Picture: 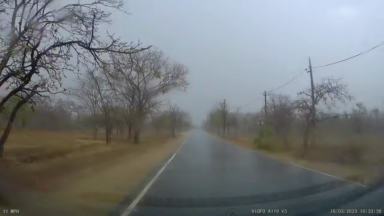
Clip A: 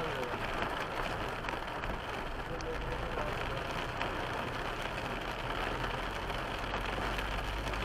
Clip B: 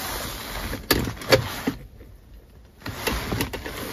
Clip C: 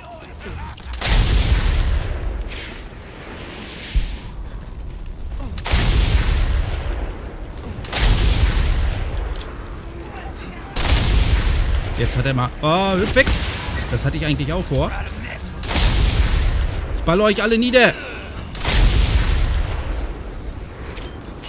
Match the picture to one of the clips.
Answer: A